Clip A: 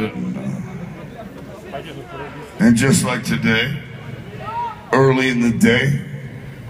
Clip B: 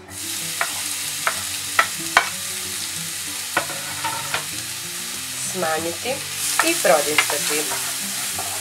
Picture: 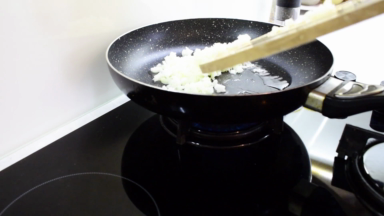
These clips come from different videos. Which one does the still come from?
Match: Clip B